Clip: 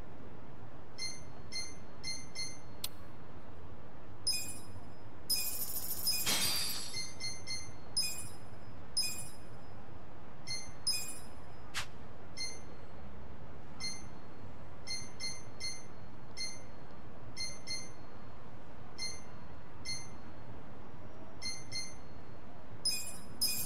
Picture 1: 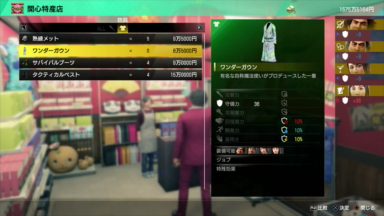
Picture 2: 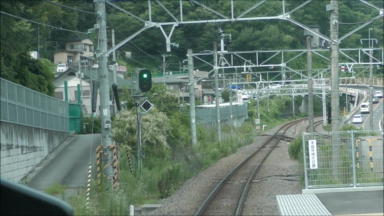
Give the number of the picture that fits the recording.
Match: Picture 1